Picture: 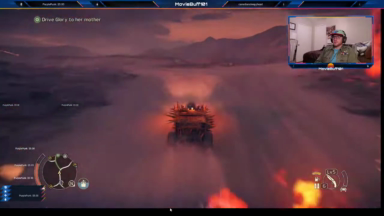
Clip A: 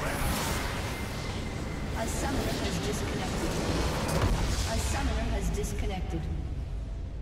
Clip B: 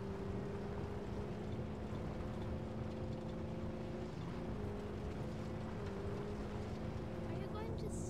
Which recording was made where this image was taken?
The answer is B